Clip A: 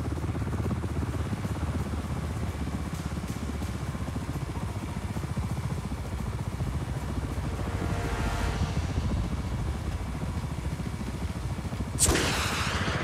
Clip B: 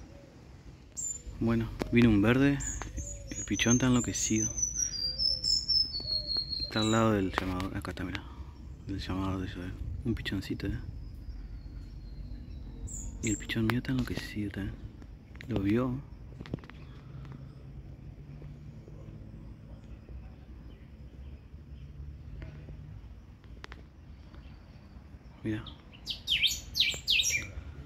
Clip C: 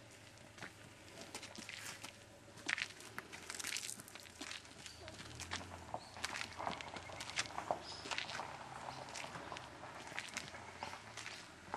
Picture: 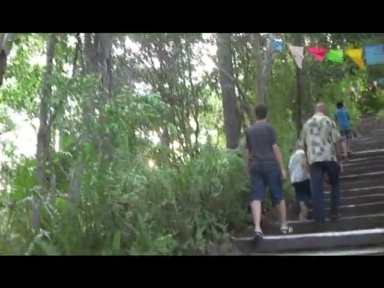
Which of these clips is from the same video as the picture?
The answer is C